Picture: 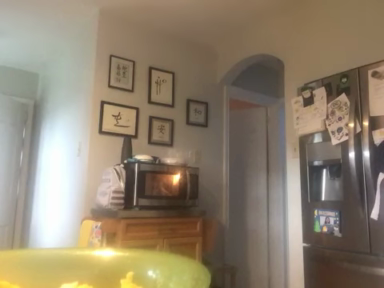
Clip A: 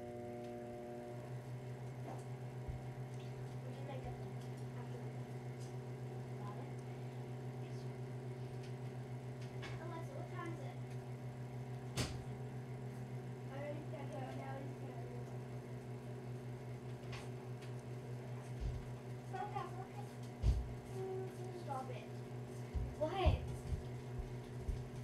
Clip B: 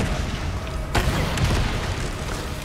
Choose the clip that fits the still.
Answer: A